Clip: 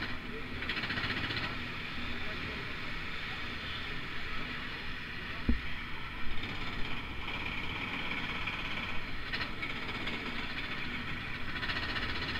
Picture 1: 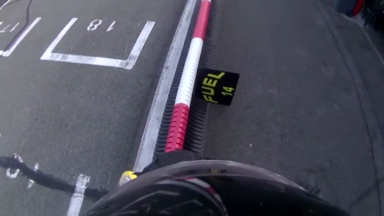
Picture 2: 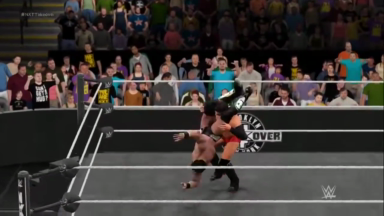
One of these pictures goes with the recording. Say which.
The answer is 1